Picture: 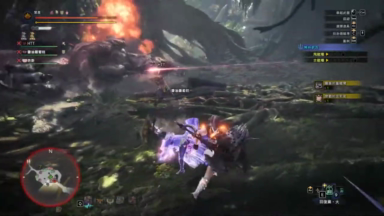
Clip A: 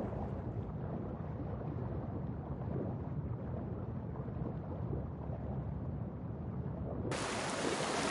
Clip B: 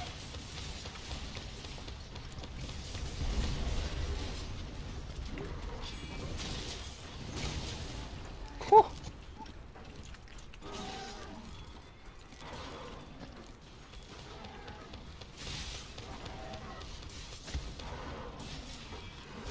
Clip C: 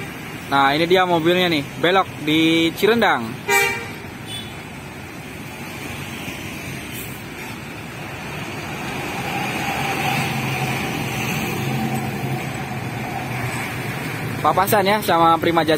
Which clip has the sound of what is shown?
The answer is B